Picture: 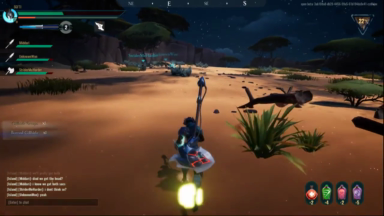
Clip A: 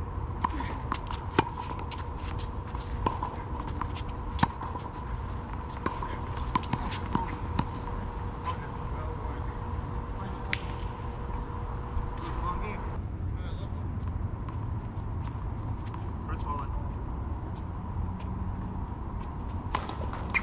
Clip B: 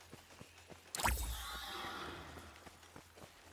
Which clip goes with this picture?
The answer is B